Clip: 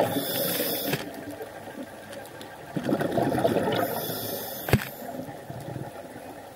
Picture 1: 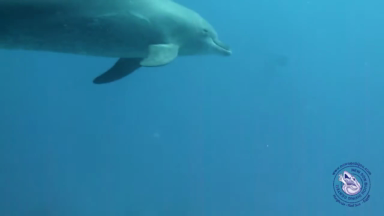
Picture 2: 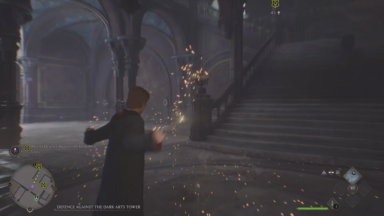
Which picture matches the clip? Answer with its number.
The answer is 1